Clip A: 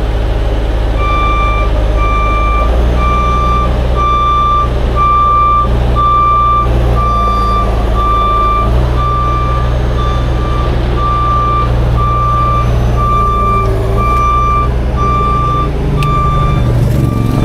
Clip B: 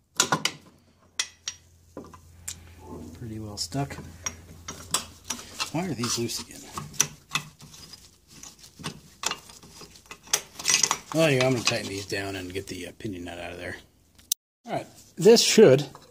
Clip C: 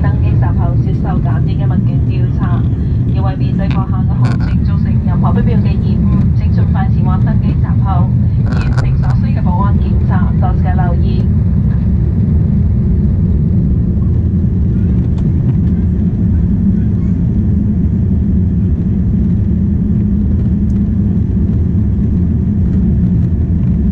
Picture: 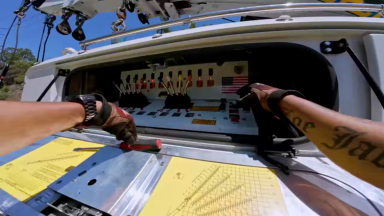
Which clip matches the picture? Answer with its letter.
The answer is A